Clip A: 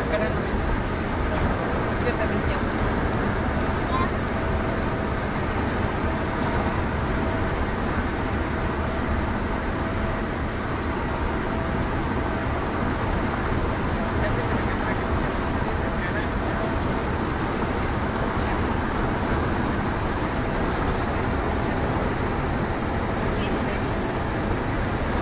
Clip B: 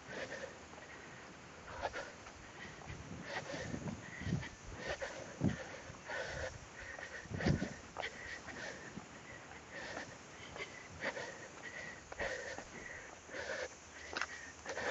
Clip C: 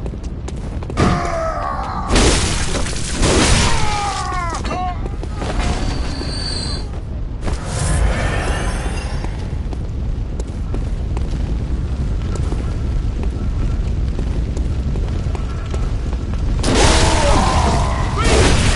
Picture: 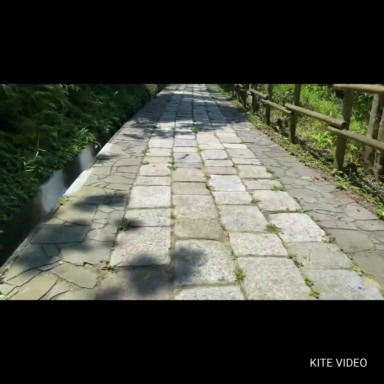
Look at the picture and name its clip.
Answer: B